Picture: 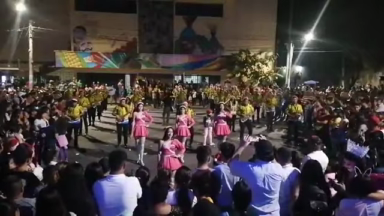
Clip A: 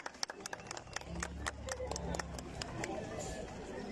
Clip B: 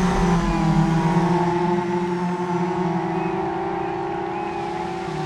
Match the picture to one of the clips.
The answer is A